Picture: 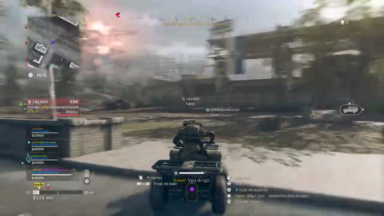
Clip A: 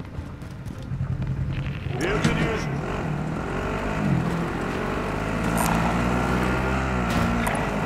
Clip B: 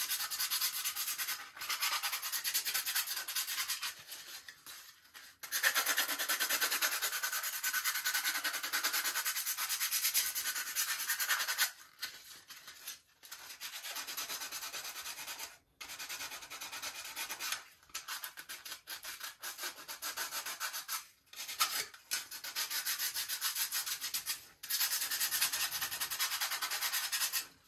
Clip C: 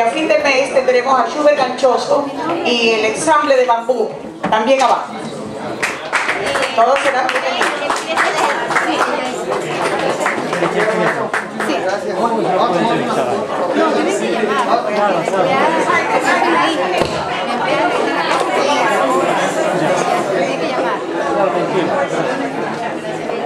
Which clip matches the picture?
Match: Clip A